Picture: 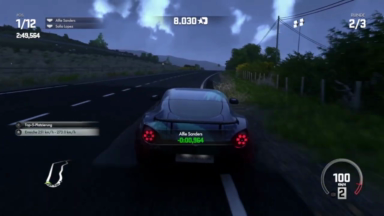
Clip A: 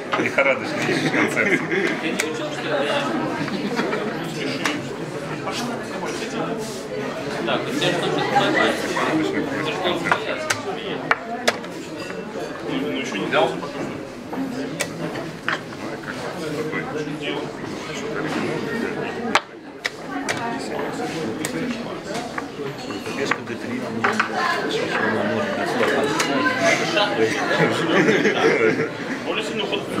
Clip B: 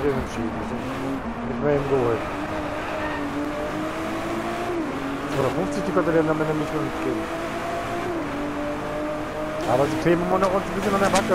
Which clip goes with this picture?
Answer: B